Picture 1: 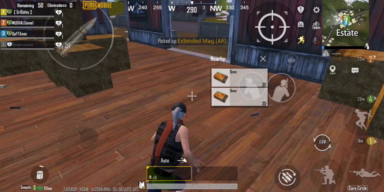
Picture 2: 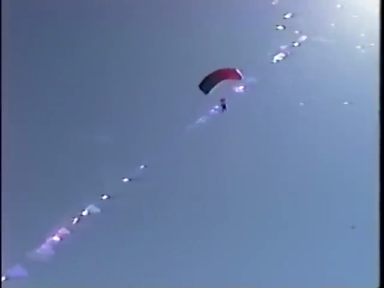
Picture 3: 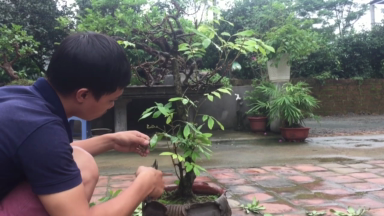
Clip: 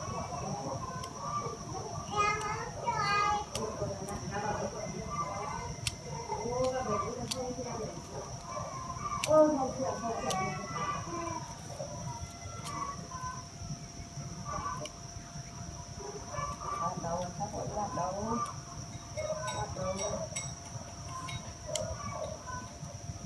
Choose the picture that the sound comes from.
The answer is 3